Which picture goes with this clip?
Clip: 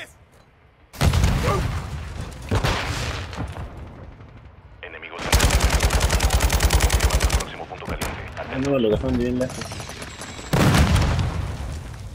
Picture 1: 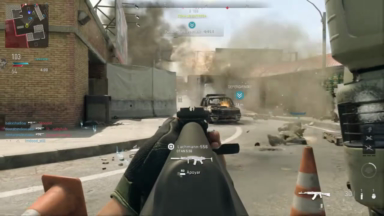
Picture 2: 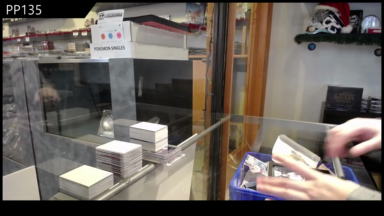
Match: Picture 1